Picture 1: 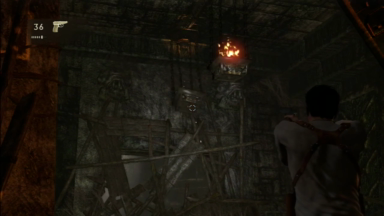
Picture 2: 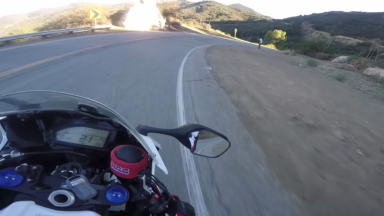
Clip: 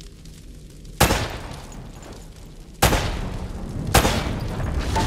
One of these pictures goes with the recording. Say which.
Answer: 1